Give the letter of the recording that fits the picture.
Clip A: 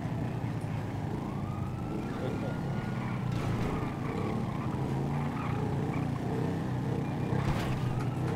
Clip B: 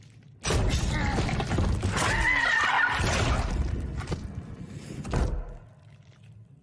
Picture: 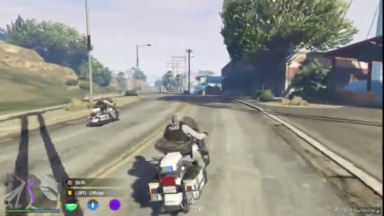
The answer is A